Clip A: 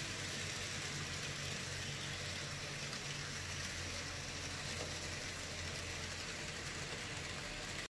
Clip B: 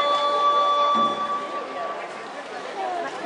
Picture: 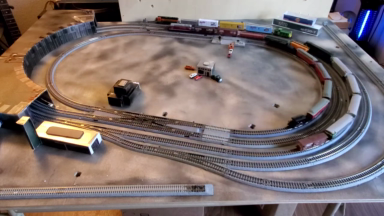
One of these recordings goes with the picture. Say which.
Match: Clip A